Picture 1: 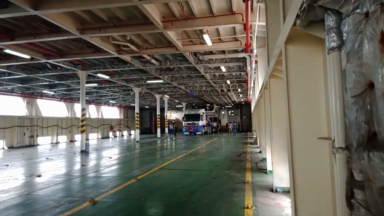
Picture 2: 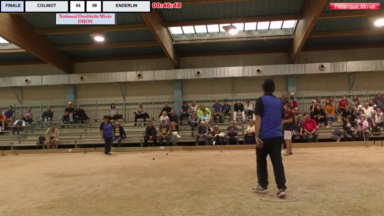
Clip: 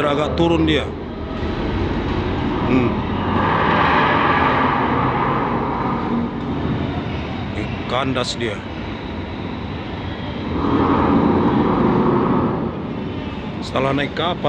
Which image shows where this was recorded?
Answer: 1